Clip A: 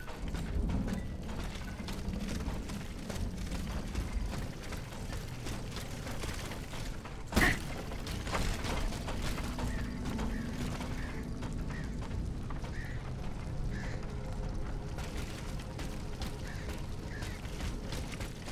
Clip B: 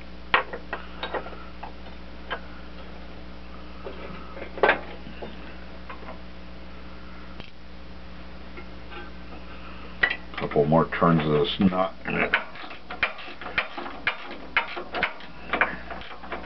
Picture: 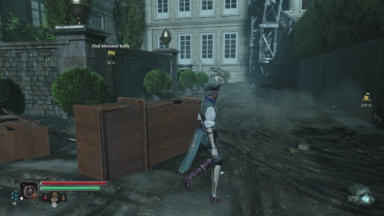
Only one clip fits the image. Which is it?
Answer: A